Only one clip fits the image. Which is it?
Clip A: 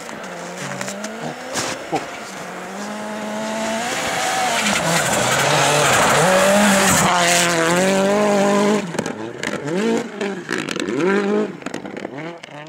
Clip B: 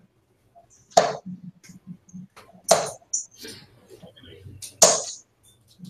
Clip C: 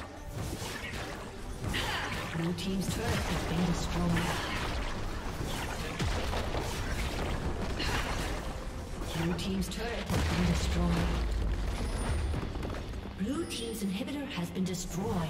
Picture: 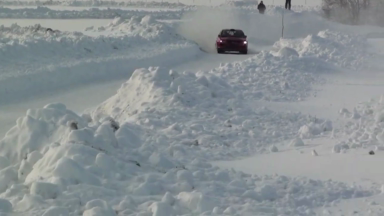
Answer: A